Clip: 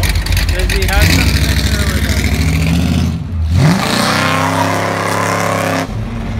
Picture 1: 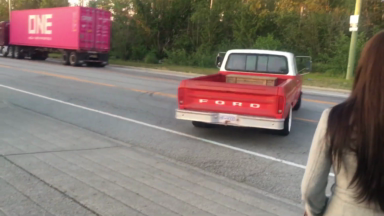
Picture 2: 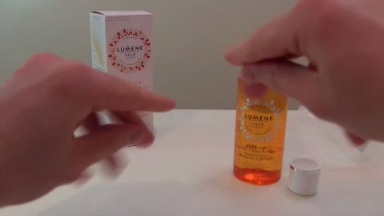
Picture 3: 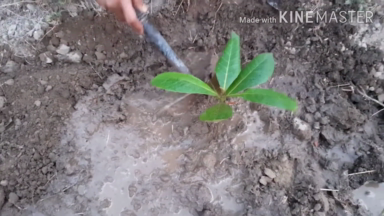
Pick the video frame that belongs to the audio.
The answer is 1